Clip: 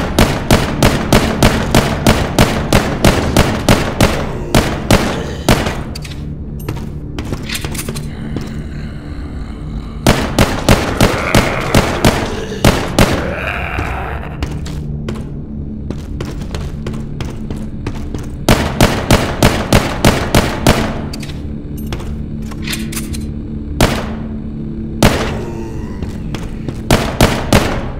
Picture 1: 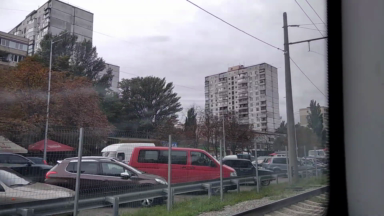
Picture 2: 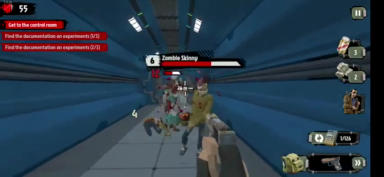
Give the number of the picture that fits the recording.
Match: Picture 2